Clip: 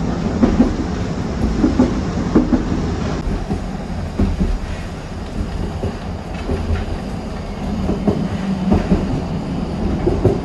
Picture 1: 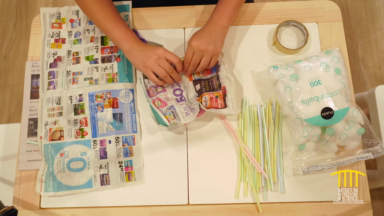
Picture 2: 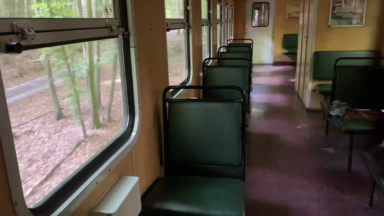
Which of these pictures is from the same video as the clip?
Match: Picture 2